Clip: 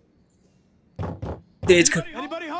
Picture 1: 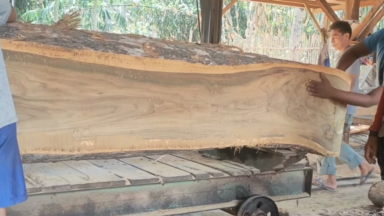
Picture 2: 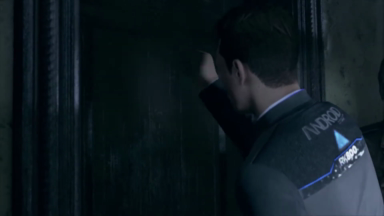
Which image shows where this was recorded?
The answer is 2